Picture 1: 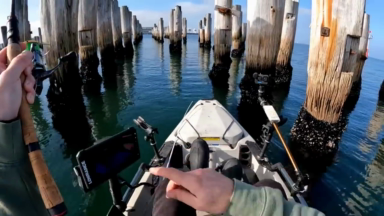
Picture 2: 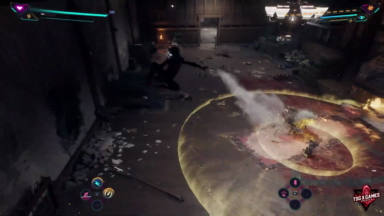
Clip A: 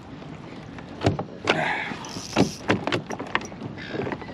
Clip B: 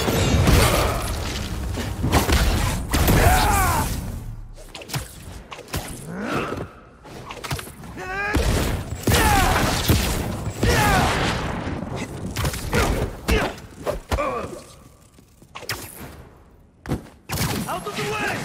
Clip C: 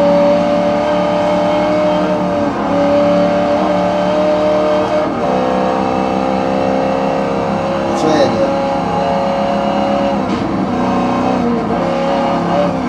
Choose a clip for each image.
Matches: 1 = A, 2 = B